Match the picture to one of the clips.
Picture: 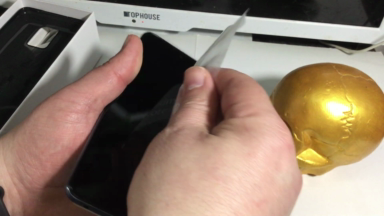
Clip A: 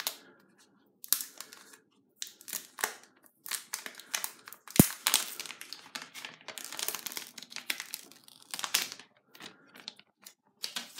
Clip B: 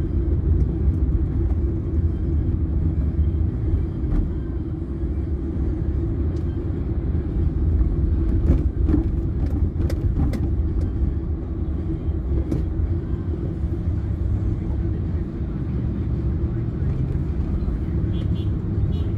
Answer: A